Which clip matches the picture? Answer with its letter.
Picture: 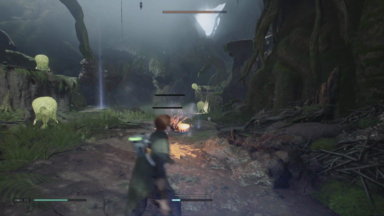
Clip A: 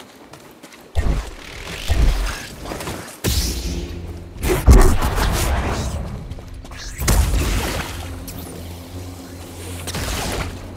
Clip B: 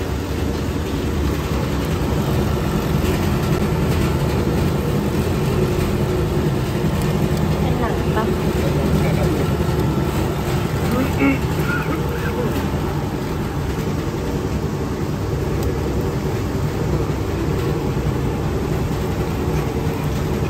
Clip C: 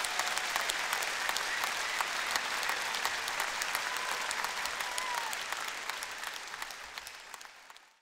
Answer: A